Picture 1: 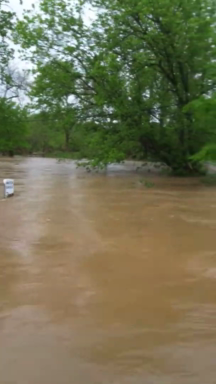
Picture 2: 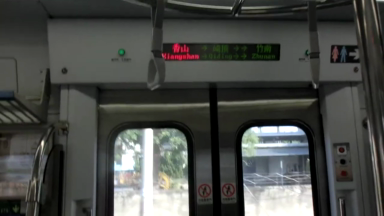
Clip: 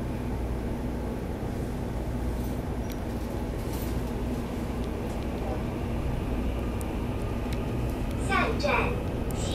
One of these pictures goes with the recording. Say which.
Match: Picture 2